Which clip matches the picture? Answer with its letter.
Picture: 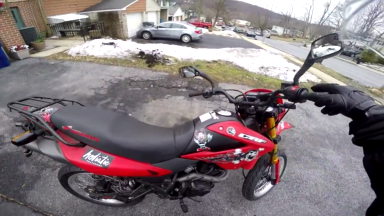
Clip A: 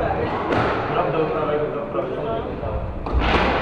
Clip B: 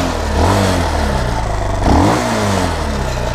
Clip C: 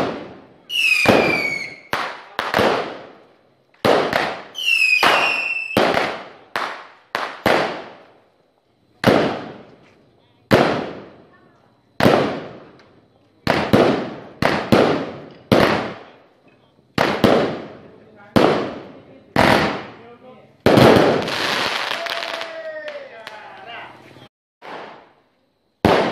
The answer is B